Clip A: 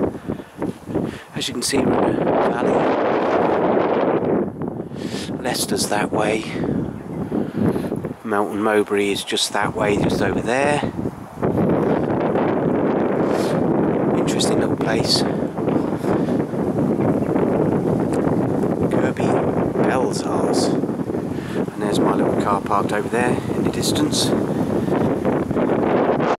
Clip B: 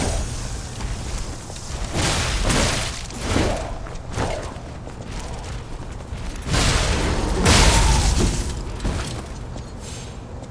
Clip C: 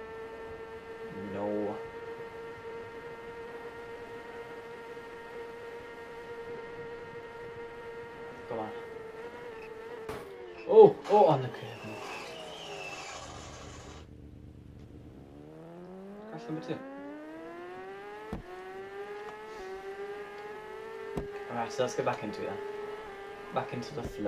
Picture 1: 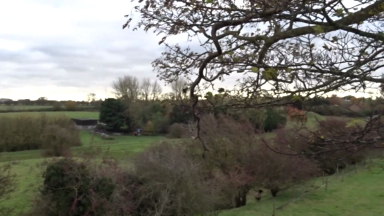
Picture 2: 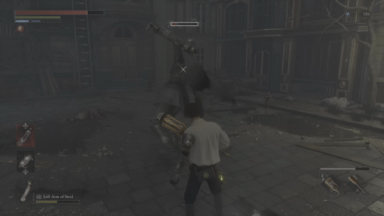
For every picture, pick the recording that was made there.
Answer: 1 A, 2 B